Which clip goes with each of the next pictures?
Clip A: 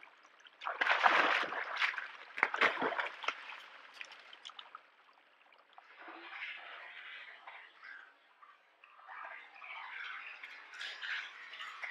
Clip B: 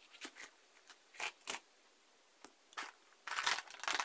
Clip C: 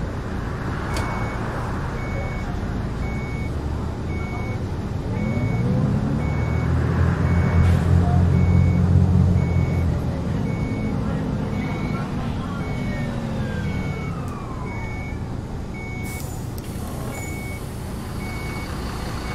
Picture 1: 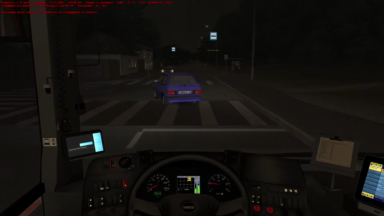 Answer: C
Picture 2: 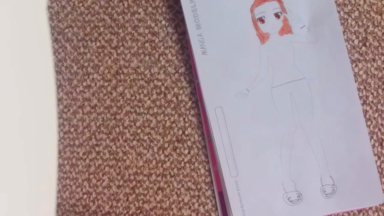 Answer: B